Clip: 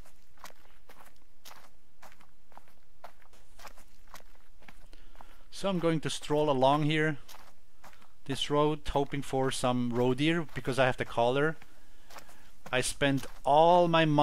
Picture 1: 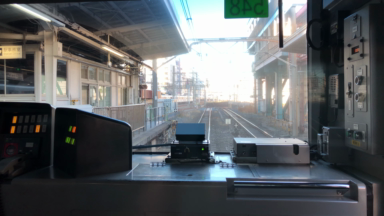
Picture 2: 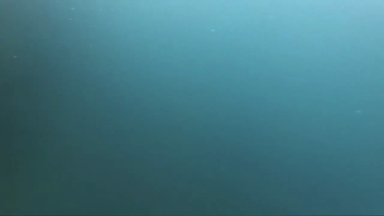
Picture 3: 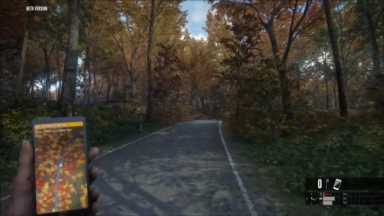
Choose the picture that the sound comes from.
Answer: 3